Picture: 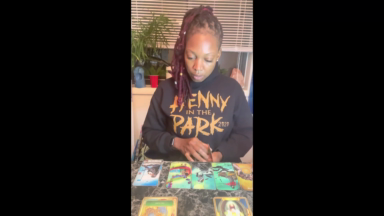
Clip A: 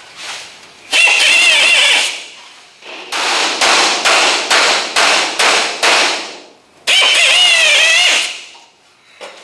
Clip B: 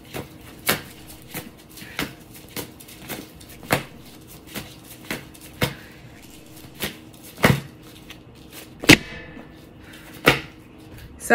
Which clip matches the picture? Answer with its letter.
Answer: B